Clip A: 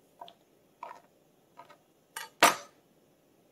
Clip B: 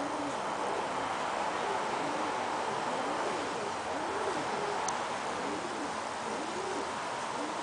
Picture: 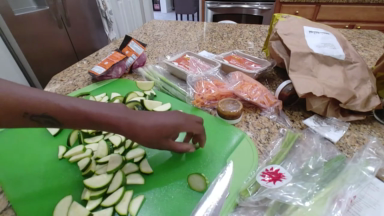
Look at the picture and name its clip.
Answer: A